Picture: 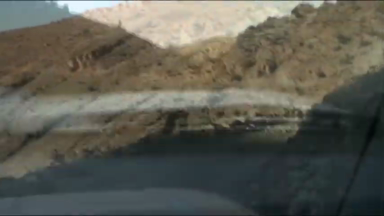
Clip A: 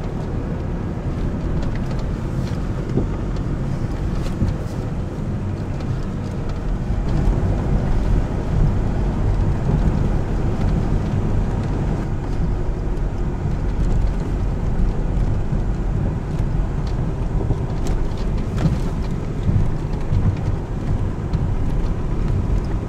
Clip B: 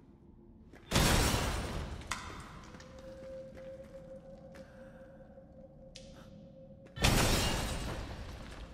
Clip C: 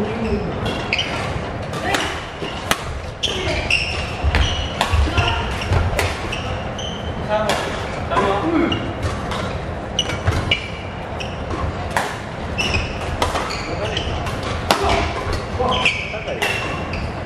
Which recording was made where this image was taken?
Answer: A